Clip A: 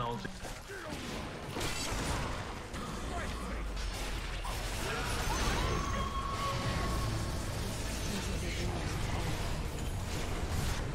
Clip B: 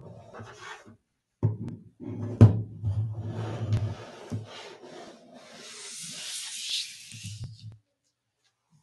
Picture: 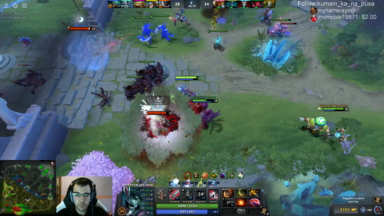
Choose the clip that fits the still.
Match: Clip A